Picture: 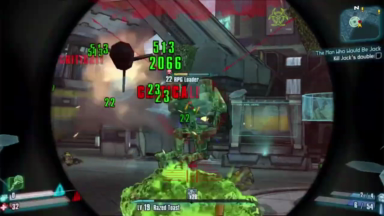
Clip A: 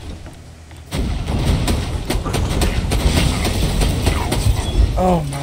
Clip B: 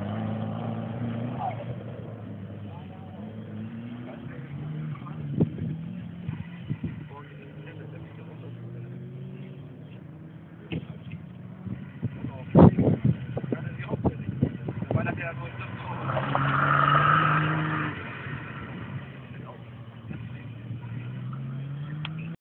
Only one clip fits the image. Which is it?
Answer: A